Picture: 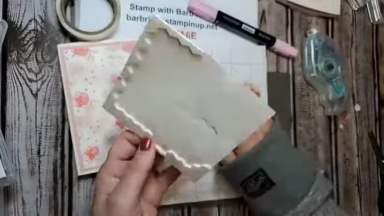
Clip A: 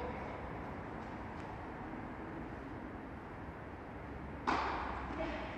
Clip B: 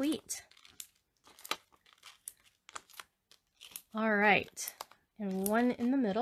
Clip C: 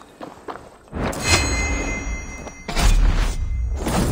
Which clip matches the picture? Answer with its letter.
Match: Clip B